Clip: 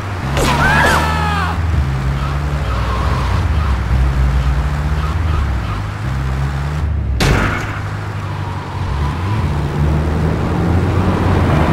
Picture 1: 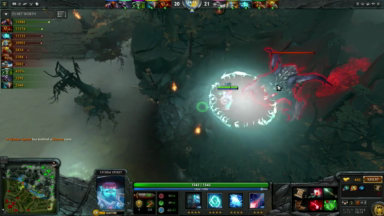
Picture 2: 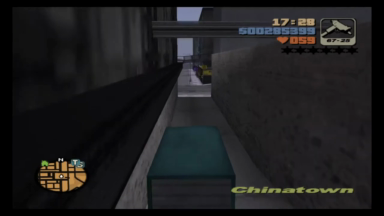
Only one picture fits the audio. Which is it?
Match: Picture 2